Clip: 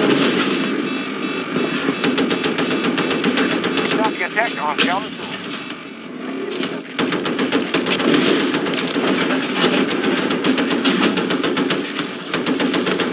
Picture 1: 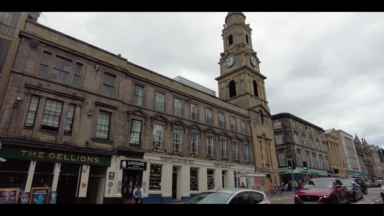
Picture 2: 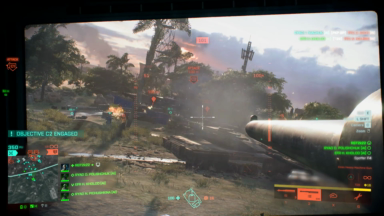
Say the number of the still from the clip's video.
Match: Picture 2